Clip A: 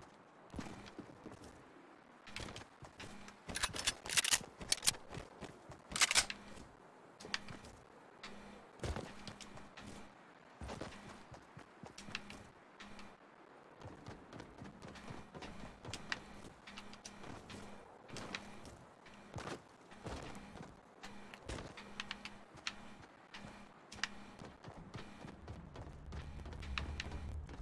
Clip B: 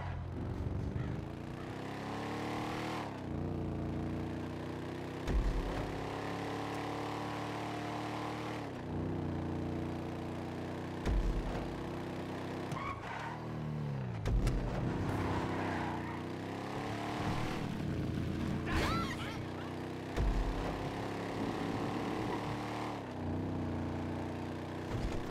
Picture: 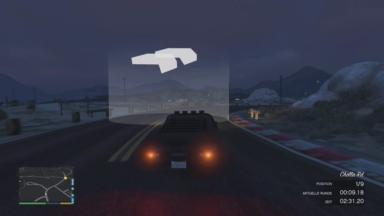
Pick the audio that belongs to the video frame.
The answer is B